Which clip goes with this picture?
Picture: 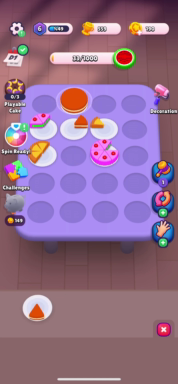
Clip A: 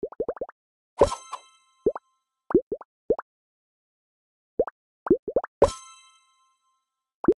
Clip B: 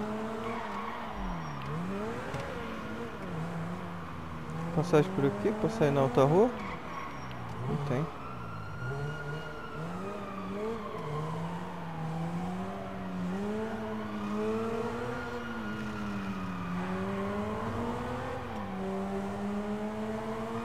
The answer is A